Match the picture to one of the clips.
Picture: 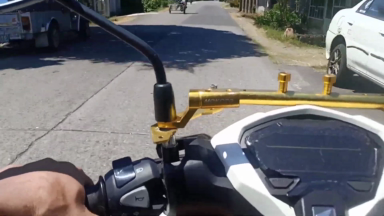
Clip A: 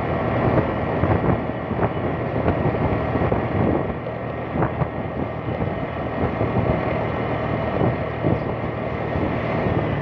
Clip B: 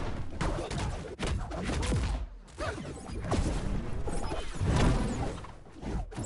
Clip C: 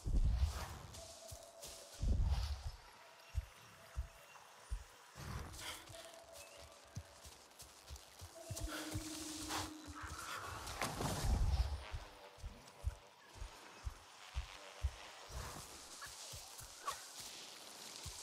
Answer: A